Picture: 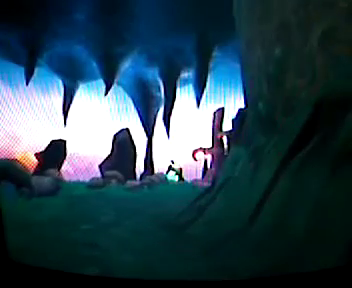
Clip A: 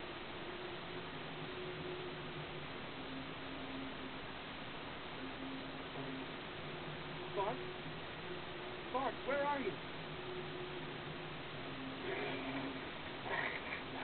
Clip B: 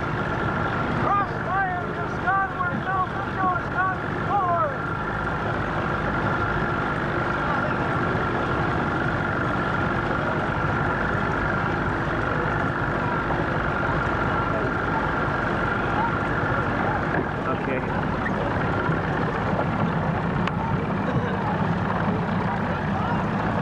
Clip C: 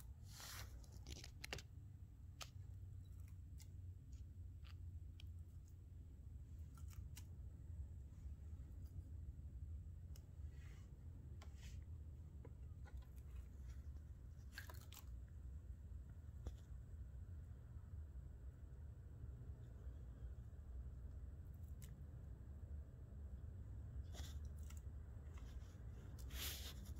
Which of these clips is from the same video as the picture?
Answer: A